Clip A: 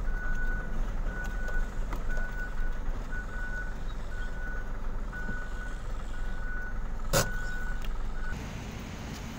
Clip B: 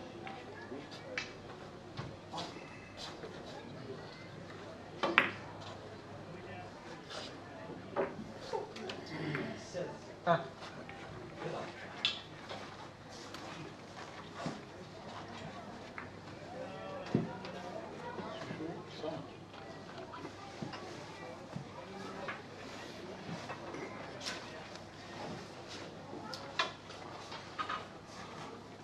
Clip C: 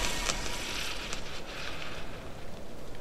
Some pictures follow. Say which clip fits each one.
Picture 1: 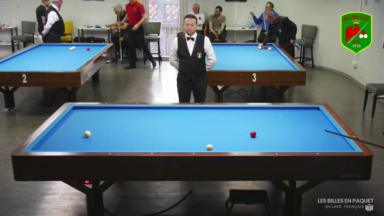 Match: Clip B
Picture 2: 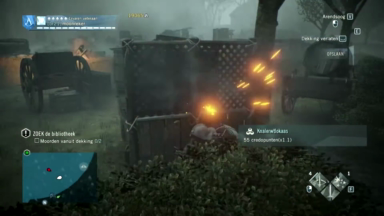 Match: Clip C